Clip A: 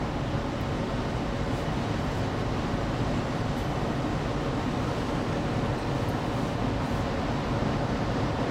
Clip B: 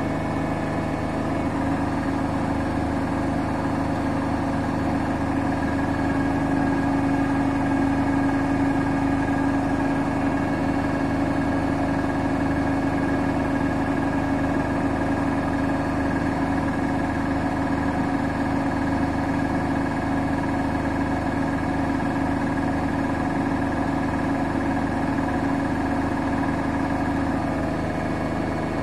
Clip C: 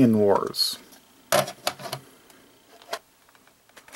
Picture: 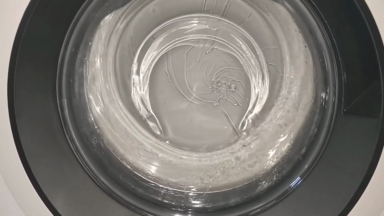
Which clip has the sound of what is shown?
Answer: B